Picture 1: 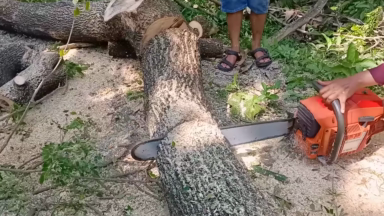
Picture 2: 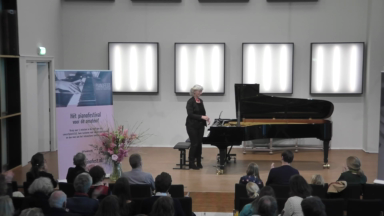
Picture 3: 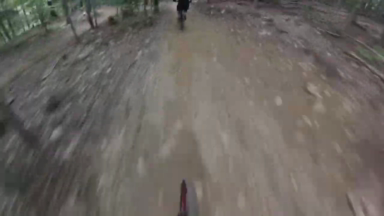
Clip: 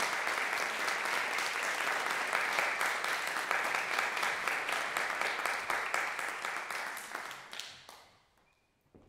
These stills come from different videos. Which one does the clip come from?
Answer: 2